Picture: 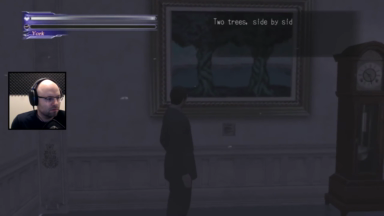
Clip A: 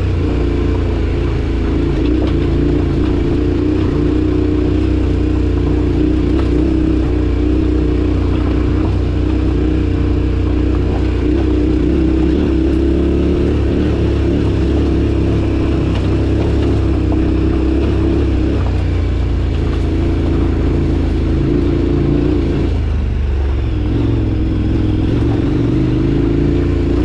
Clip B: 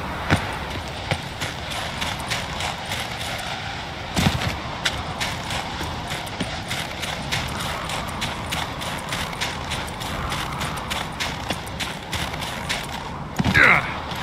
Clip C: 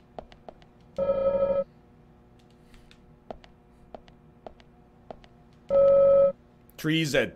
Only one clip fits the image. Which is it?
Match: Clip C